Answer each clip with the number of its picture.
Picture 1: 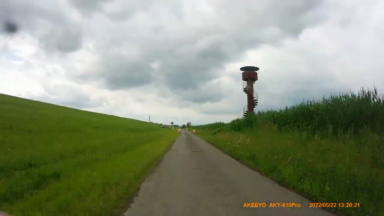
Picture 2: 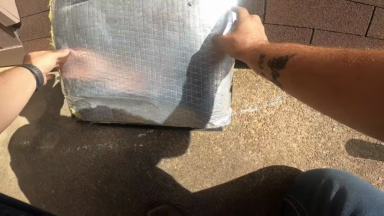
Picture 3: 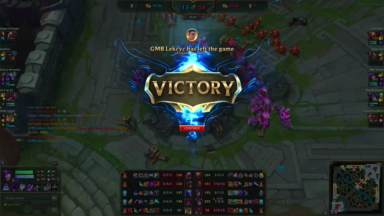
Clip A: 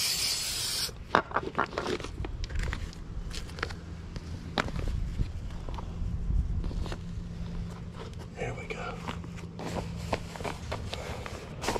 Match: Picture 2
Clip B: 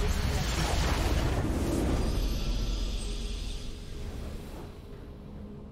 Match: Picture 3